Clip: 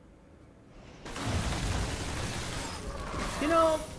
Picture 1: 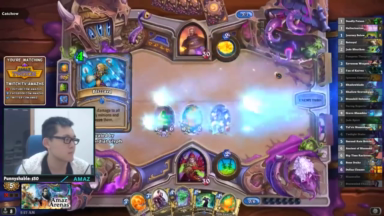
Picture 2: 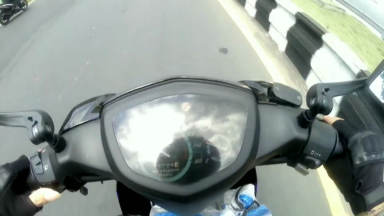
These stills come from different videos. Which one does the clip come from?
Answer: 1